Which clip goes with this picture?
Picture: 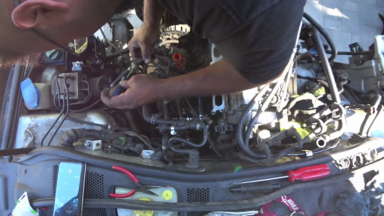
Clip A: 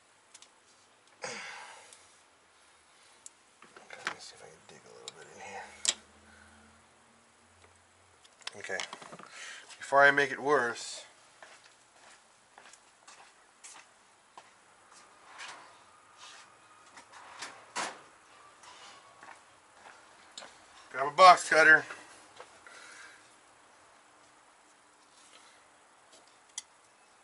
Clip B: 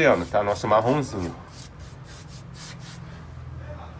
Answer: A